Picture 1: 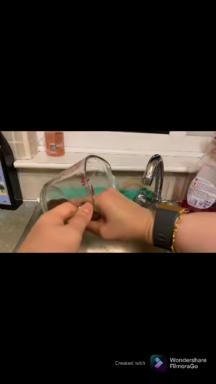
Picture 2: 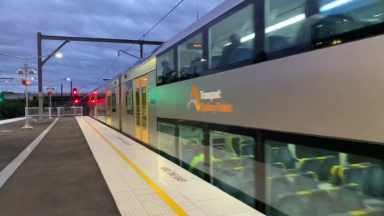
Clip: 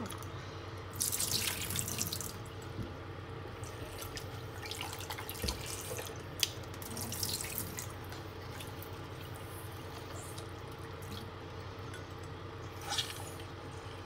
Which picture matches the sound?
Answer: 1